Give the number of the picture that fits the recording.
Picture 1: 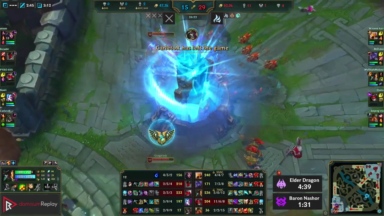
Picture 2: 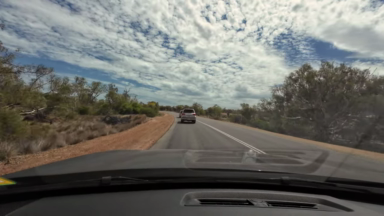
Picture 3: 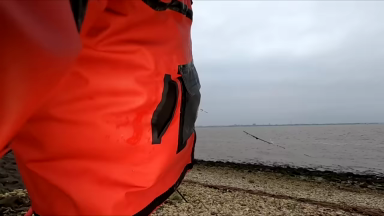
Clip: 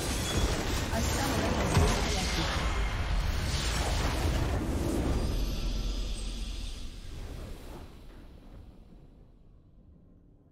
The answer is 1